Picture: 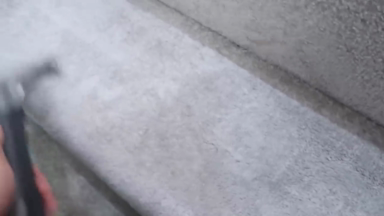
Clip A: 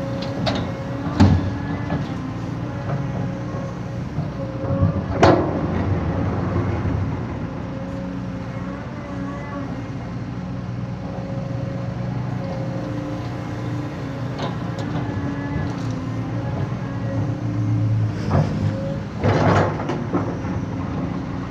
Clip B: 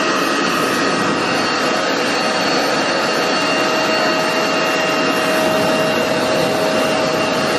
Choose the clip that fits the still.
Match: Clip B